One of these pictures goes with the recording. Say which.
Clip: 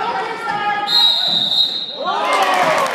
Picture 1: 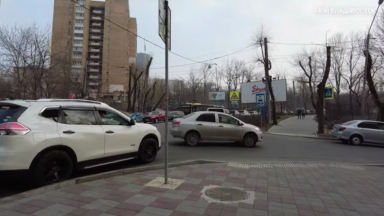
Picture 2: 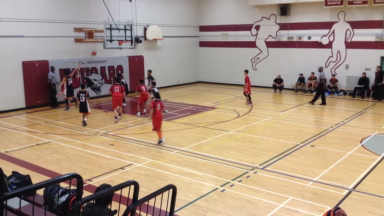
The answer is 2